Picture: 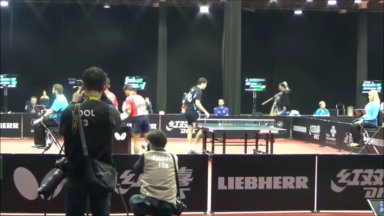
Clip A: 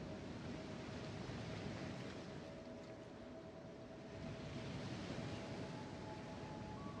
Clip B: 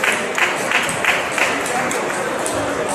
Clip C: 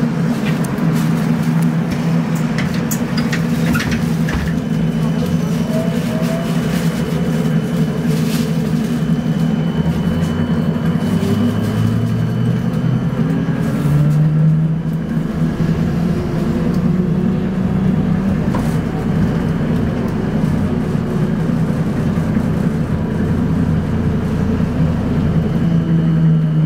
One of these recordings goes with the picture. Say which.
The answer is B